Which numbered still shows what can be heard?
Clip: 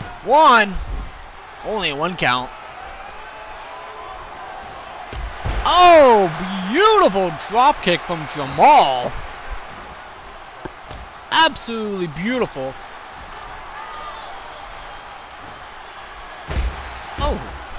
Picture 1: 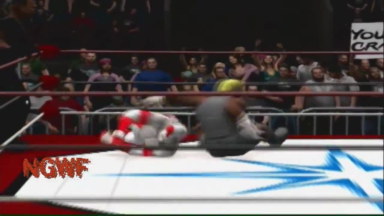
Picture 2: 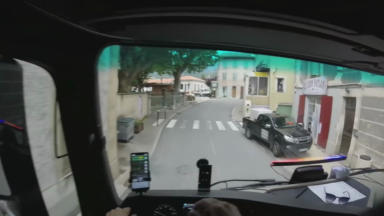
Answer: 1